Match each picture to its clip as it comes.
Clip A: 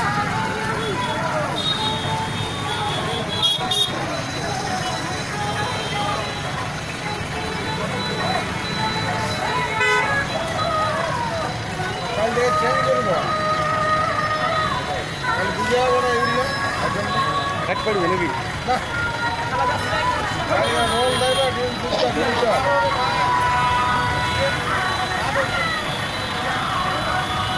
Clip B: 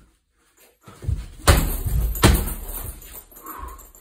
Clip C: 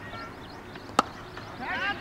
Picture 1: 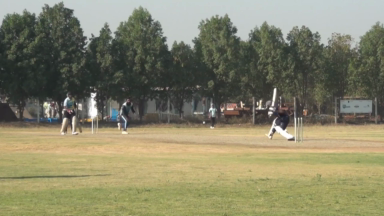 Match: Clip C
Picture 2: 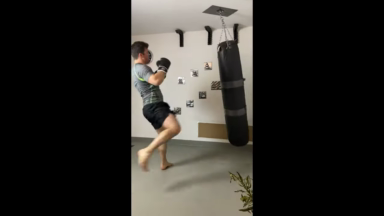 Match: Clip B